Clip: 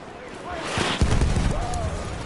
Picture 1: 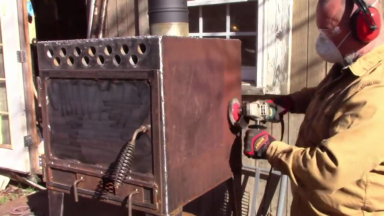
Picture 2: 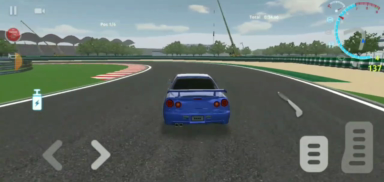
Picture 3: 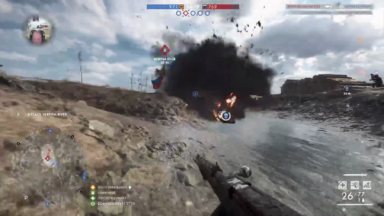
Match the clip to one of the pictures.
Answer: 3